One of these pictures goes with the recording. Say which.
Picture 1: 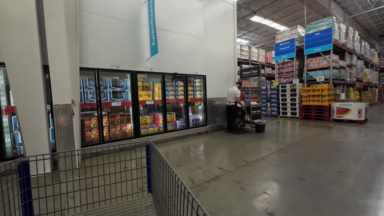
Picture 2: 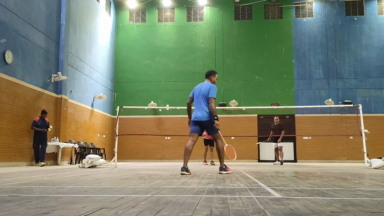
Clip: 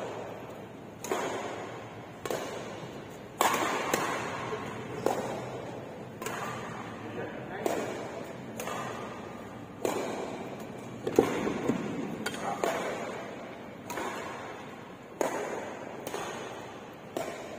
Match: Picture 2